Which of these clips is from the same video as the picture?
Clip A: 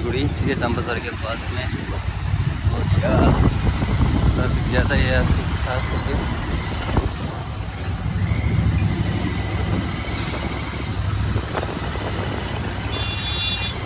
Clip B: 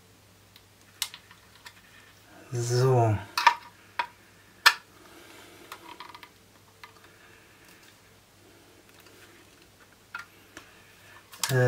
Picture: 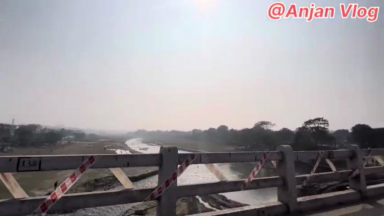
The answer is A